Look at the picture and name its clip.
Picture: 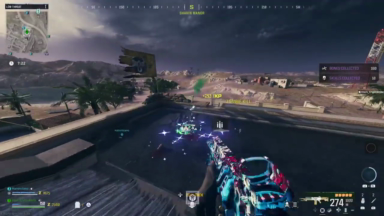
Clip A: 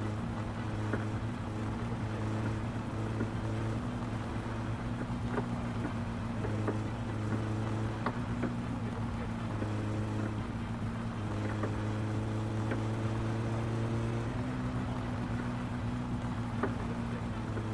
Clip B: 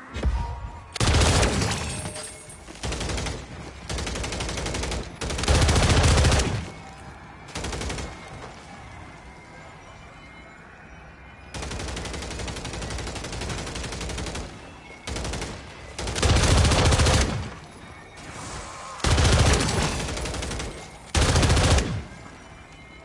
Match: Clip B